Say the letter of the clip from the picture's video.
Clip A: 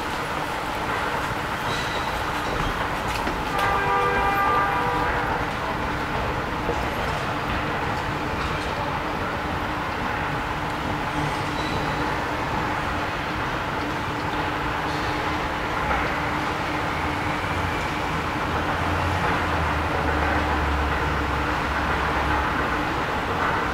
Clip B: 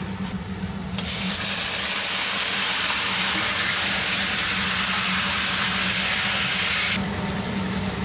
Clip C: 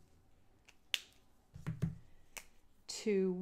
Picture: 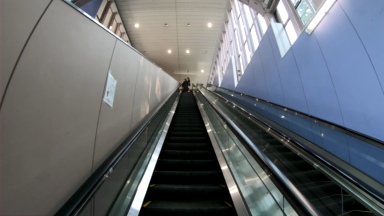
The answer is A